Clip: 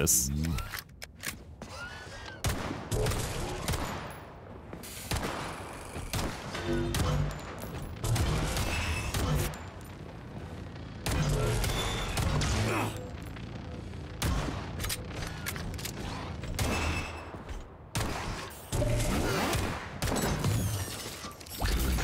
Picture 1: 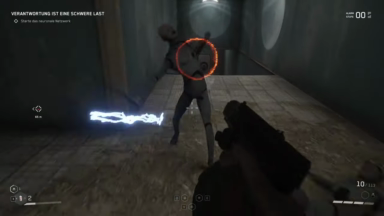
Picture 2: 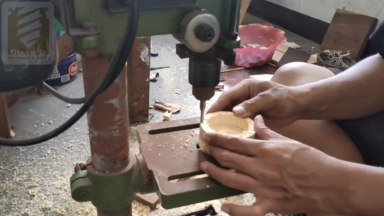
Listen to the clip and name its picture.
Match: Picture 1